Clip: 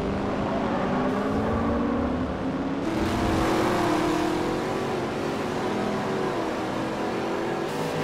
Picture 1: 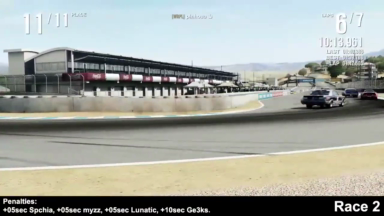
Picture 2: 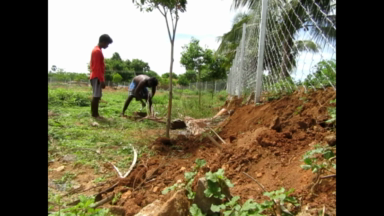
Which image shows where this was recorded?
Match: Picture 1